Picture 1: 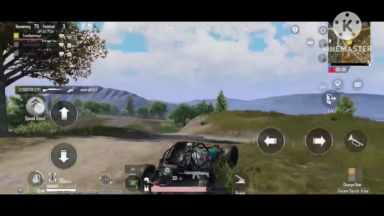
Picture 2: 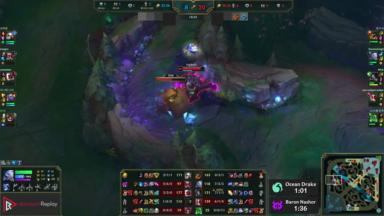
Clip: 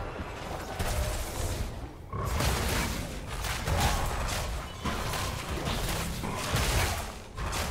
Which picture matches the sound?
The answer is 2